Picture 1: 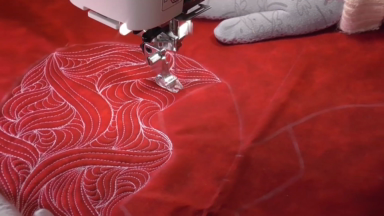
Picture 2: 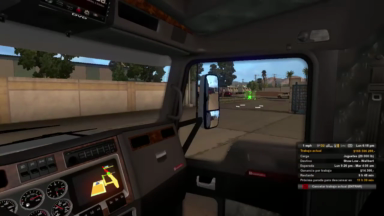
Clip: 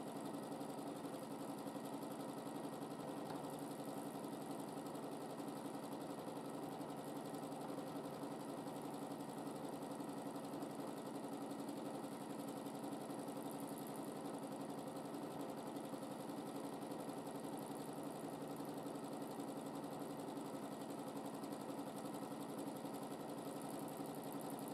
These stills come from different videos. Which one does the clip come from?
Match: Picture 1